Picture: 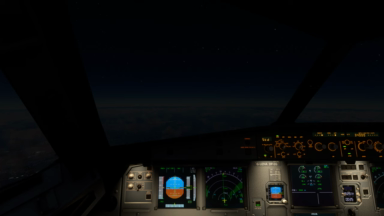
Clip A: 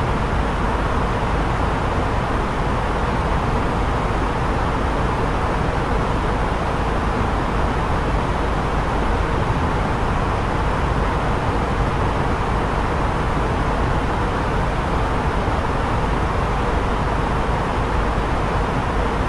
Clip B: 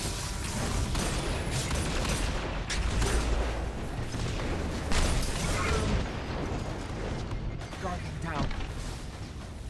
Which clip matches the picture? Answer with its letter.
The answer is A